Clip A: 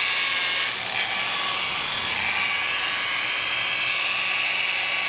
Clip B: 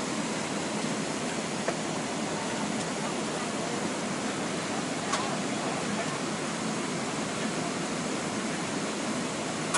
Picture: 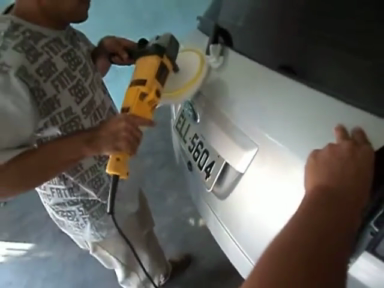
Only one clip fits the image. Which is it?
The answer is A